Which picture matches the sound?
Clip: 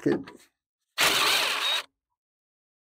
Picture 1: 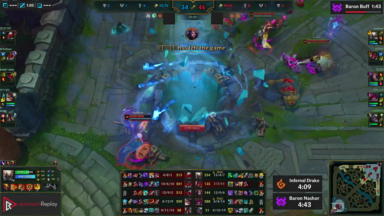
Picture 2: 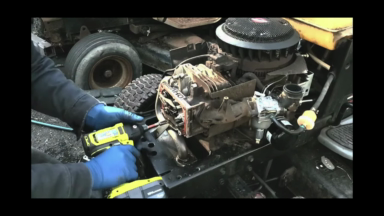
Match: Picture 2